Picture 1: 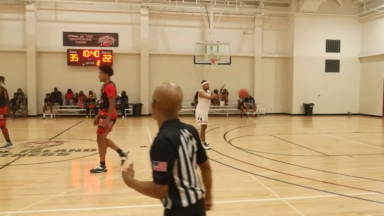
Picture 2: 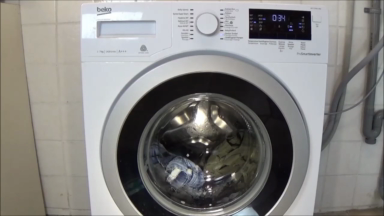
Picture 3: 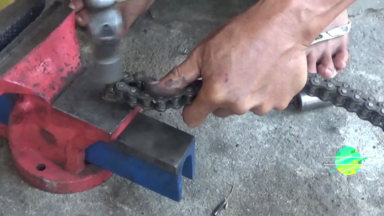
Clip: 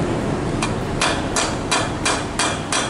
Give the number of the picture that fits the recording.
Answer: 3